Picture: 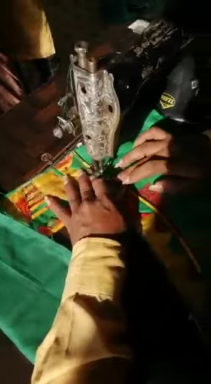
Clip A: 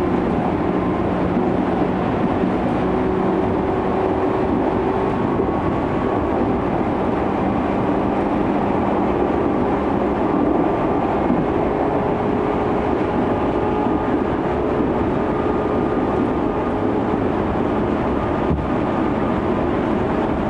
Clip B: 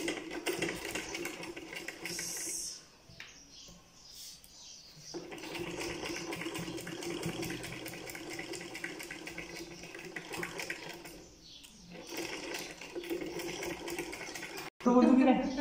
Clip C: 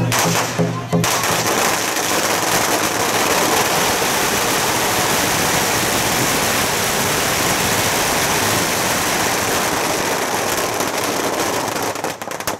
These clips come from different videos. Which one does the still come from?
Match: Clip B